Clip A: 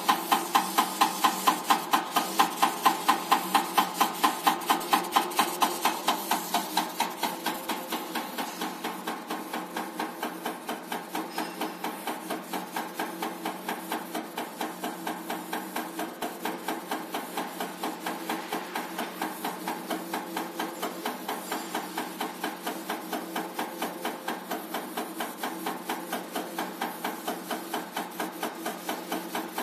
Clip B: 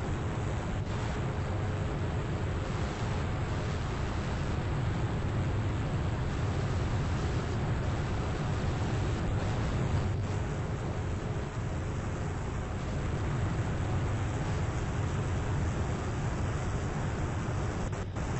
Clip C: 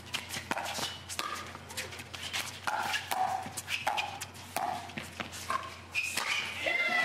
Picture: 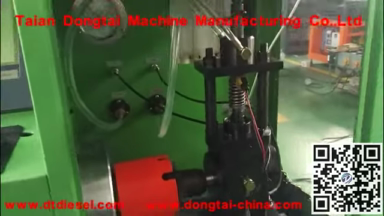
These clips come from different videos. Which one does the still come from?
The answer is A